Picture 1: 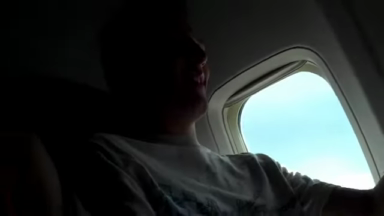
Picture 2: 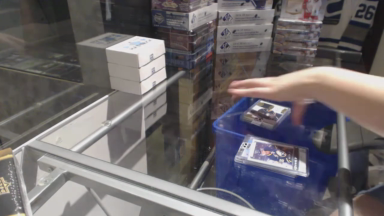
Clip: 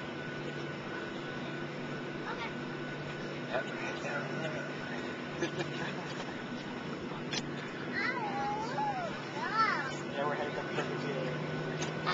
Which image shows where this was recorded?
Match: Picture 1